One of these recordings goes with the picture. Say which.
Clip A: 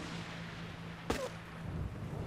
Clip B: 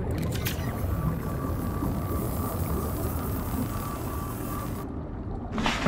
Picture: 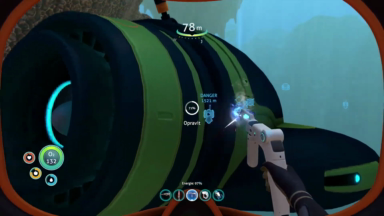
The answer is B